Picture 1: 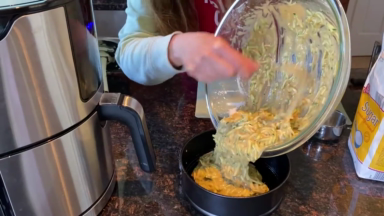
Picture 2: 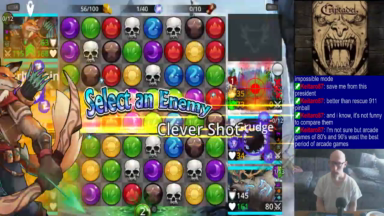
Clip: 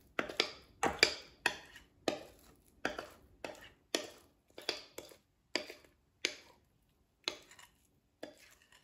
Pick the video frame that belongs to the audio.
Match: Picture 1